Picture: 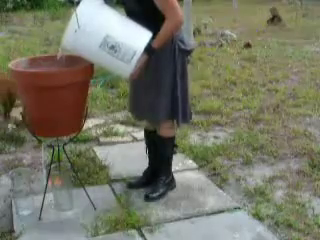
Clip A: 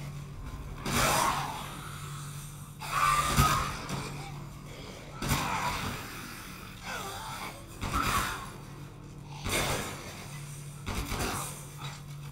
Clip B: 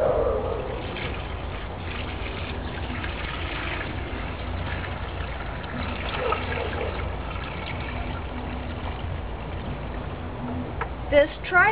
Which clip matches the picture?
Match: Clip B